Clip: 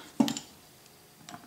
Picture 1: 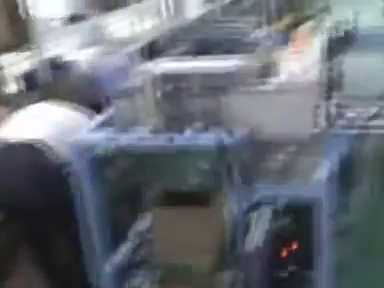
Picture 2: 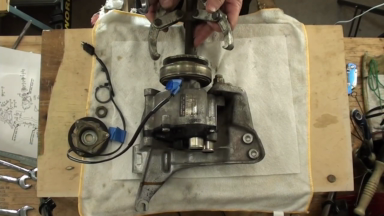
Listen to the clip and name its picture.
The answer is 2